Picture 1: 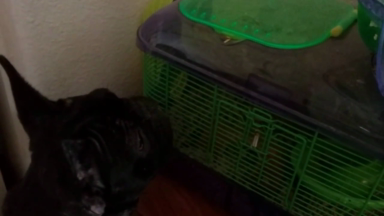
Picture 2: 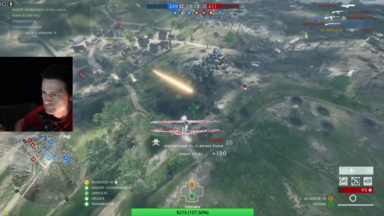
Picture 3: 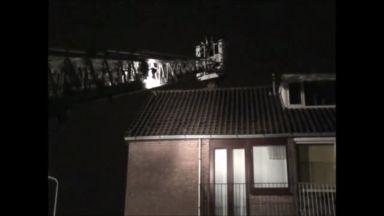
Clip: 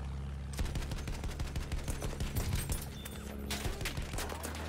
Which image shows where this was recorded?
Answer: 2